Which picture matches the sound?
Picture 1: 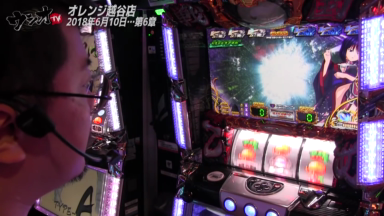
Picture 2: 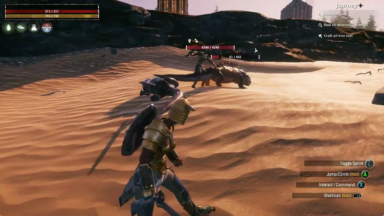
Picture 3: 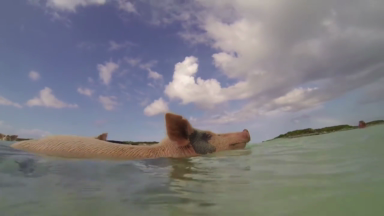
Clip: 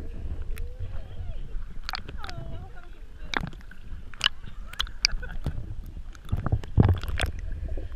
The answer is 3